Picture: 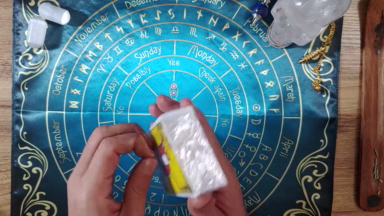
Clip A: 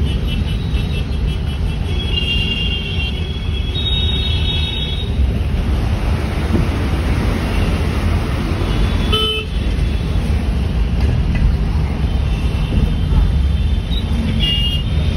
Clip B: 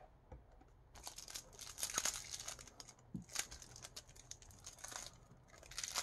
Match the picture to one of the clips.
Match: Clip B